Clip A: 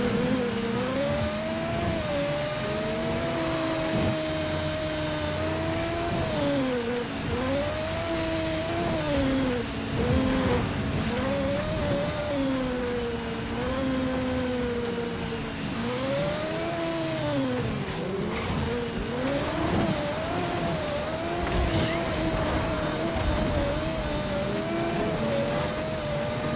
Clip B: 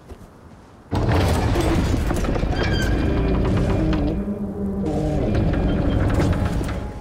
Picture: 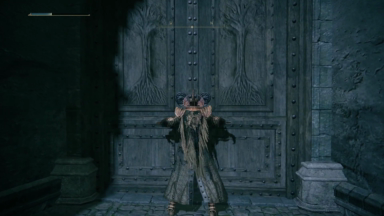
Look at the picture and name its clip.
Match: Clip B